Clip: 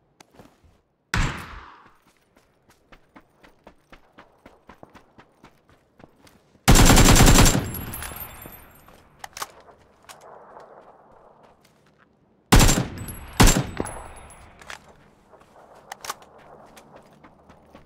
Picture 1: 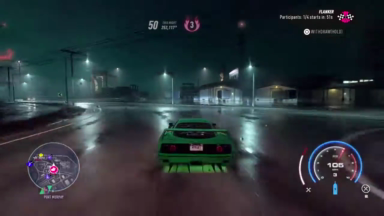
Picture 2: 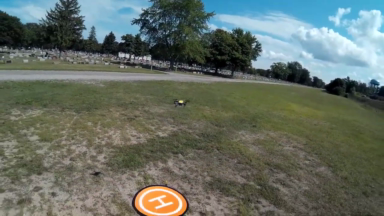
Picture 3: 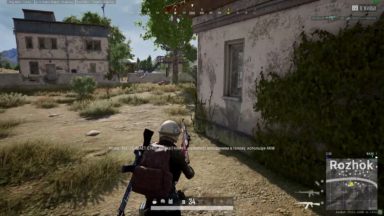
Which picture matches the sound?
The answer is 3